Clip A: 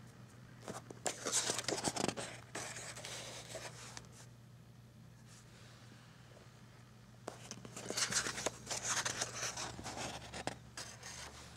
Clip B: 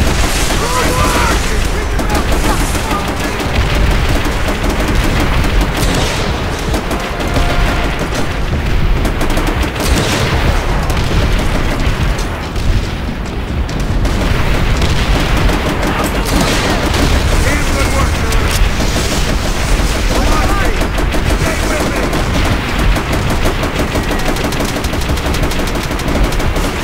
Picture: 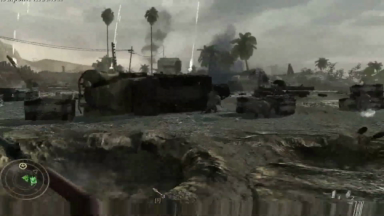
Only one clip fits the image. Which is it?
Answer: B